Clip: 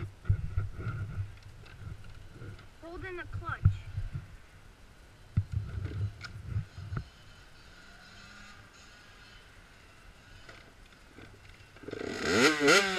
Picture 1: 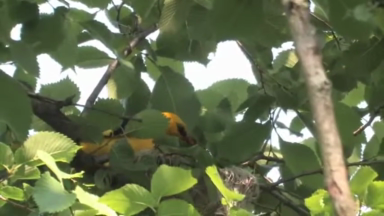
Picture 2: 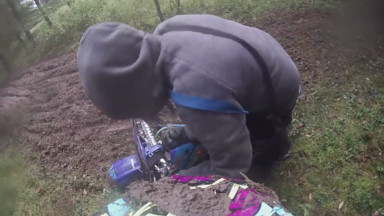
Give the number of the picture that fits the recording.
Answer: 2